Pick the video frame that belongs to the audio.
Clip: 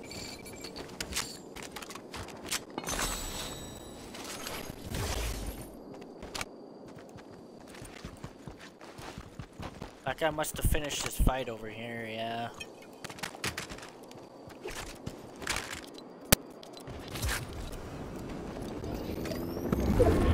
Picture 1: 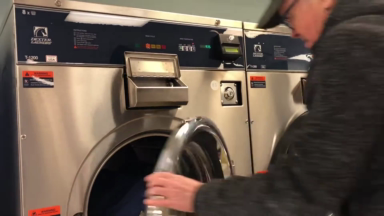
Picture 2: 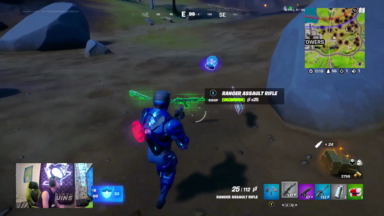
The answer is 2